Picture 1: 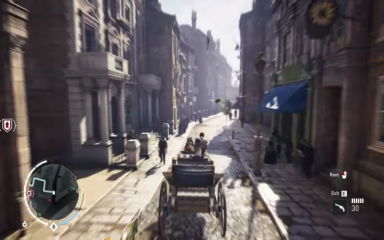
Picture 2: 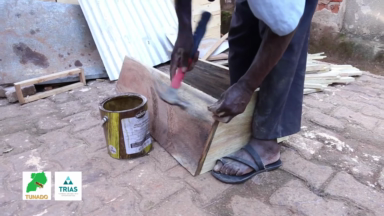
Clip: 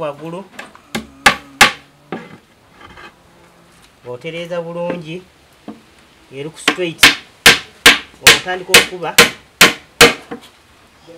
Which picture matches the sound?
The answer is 2